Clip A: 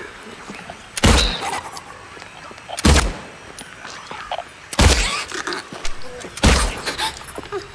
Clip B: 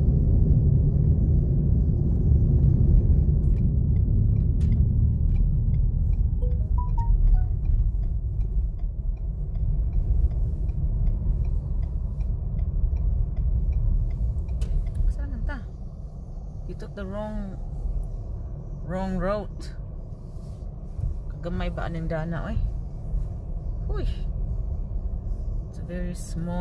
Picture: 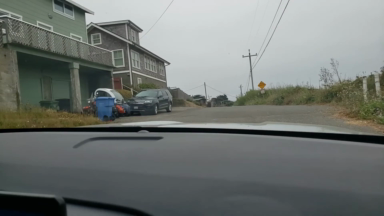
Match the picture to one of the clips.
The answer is B